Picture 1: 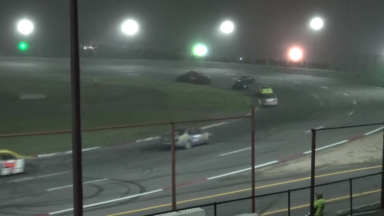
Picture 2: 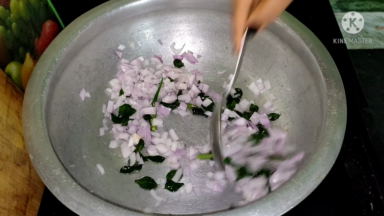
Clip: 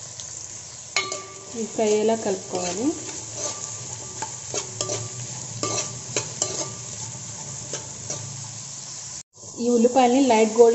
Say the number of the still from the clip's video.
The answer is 2